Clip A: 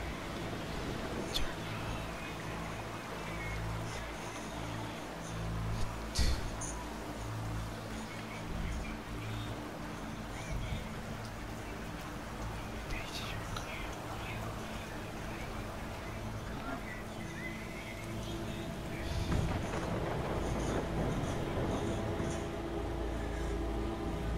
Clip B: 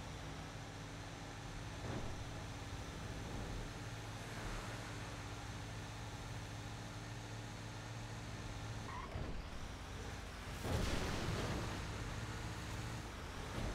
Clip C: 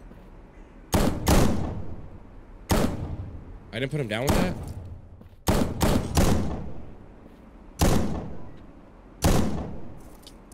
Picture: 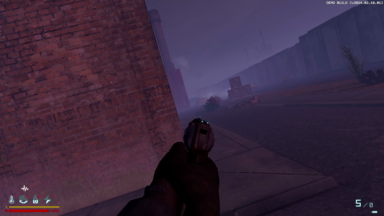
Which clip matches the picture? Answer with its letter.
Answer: C